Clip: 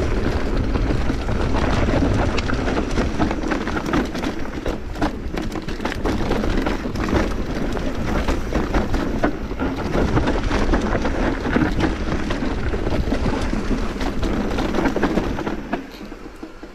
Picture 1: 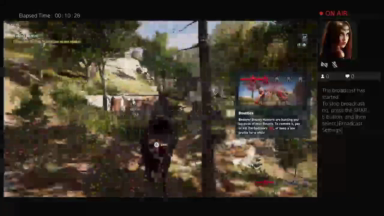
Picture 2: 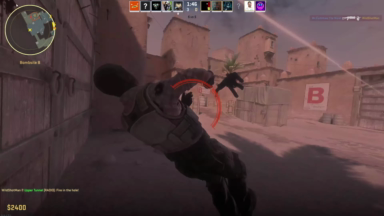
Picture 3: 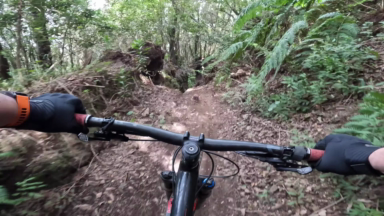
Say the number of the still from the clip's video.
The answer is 3